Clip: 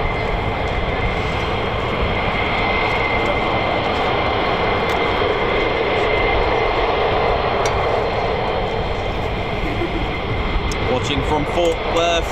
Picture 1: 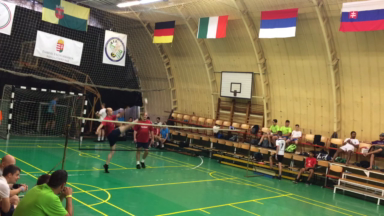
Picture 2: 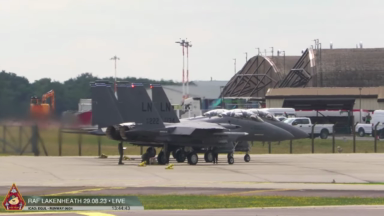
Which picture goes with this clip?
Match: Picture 2